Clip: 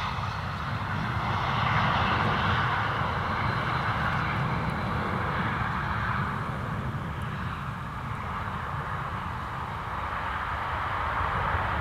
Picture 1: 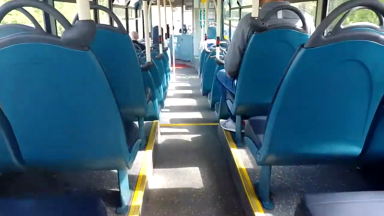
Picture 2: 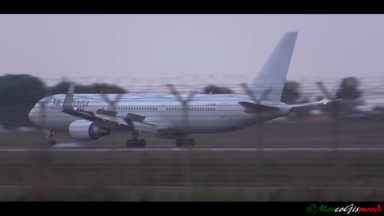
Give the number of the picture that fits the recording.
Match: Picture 2